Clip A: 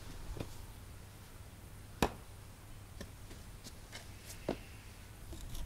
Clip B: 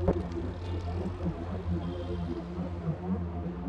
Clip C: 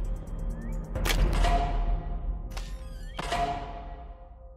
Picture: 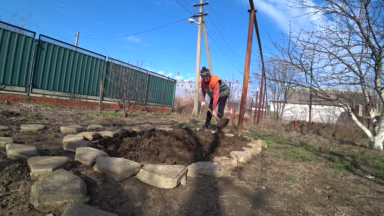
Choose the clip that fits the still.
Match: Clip A